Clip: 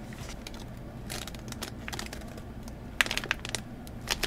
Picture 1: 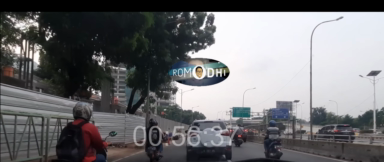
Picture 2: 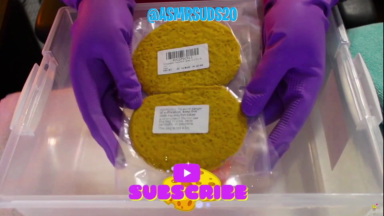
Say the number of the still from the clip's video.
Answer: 2